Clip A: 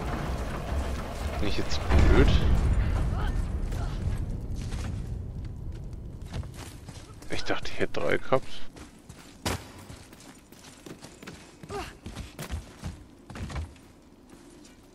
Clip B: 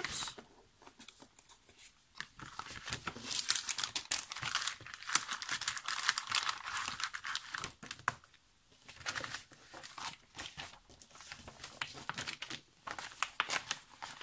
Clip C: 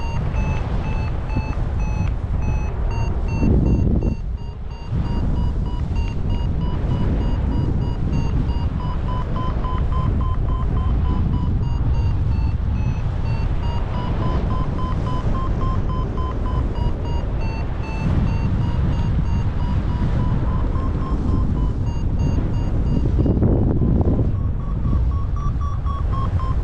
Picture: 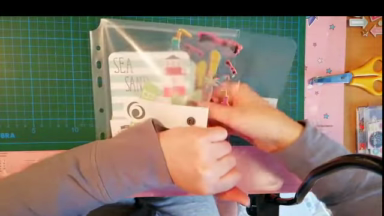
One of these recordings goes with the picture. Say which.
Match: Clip B